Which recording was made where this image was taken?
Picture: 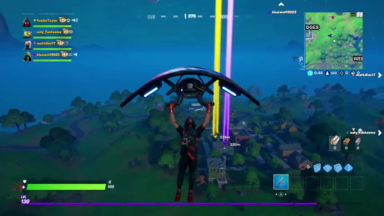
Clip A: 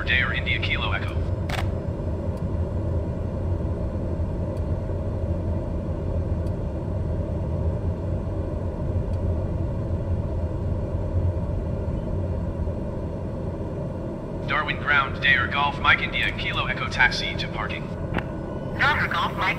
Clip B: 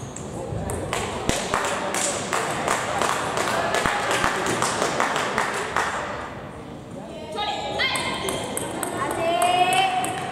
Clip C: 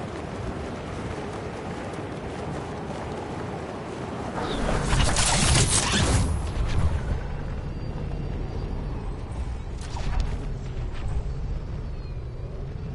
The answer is C